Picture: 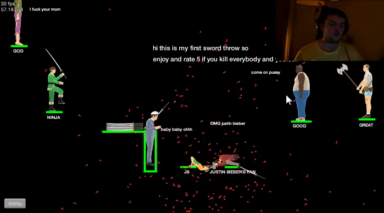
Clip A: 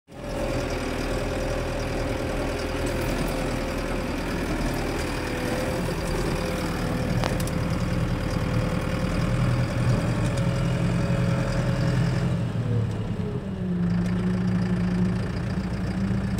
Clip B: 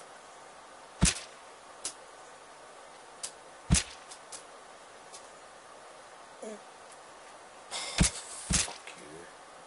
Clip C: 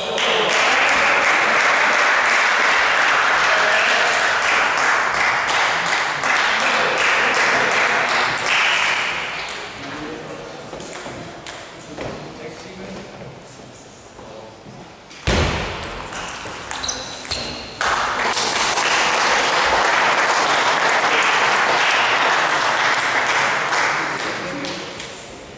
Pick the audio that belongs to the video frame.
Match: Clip B